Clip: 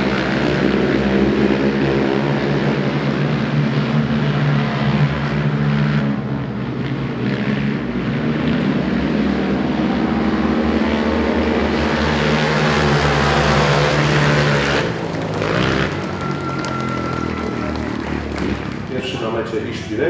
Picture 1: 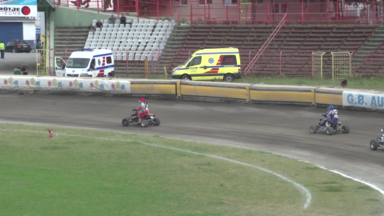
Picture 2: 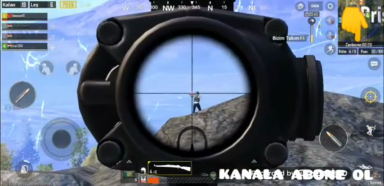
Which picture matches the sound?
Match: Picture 1